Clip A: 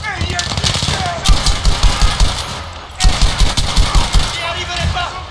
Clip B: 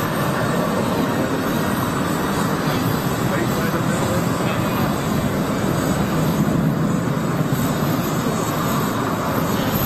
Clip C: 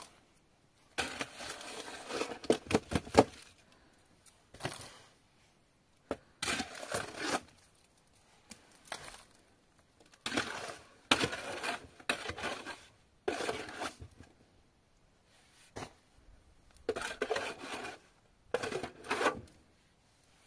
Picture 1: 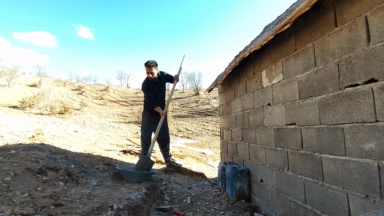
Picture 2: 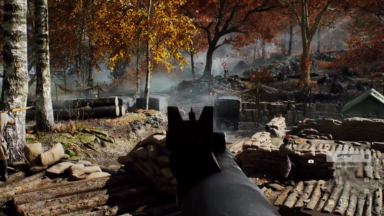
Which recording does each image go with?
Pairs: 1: C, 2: A